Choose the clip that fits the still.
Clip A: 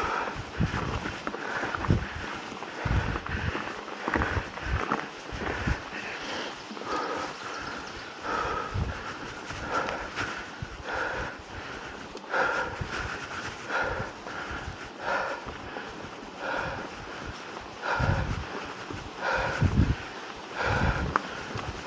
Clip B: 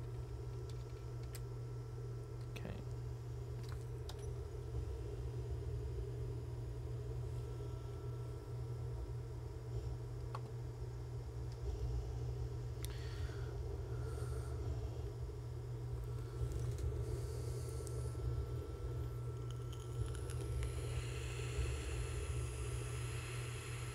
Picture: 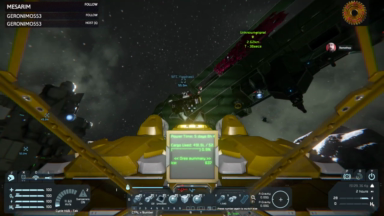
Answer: B